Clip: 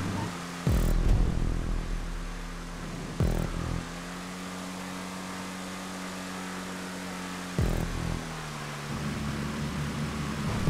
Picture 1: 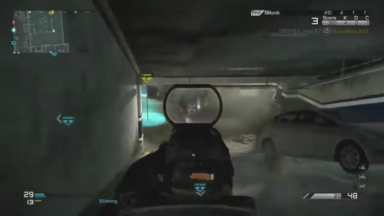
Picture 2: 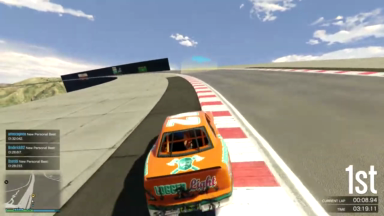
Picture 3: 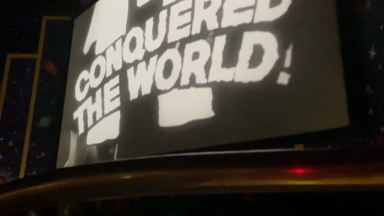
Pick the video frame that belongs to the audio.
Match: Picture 2